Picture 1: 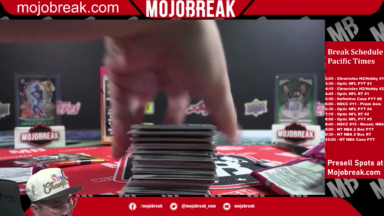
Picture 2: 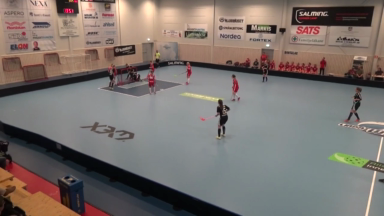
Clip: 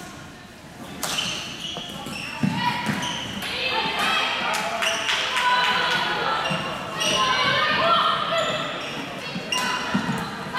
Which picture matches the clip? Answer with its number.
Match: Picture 2